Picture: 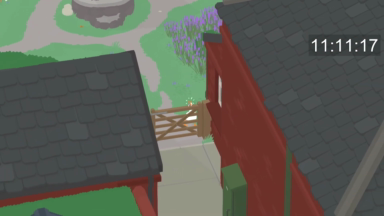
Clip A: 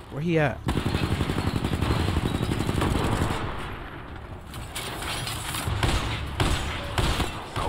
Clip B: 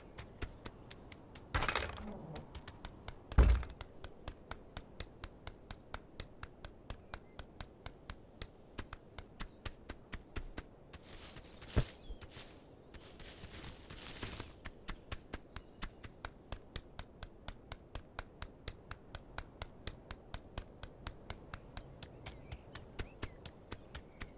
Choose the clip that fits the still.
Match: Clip B